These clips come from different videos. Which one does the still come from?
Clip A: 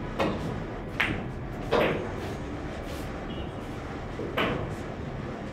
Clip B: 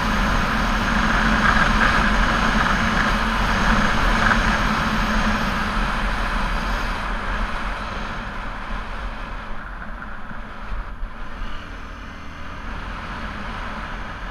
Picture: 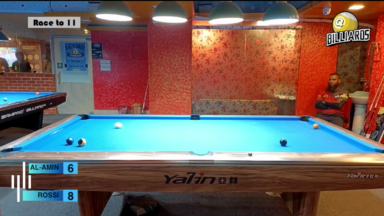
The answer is A